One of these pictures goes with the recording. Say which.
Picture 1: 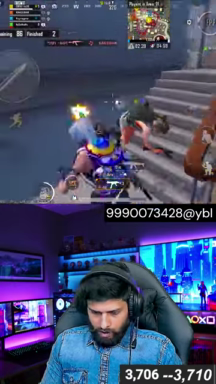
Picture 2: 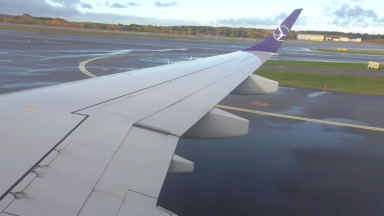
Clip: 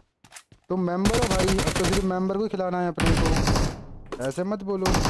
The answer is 1